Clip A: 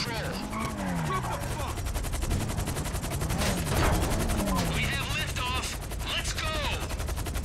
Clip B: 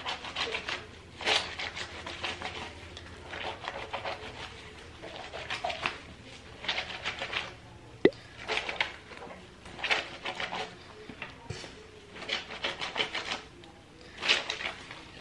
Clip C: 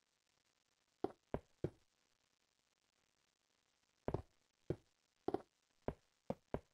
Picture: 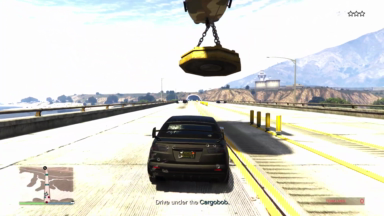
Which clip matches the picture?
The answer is A